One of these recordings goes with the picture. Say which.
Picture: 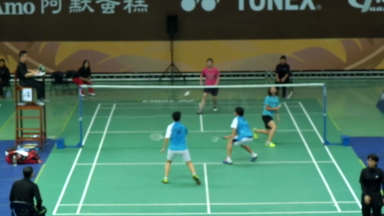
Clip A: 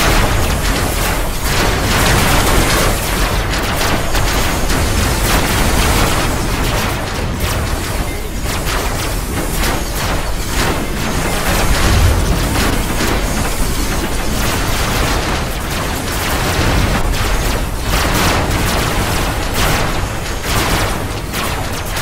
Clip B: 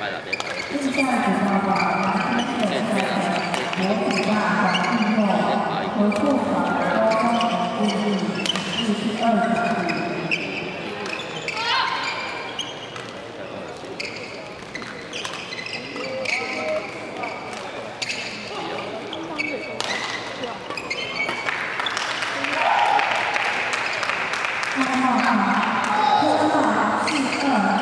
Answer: B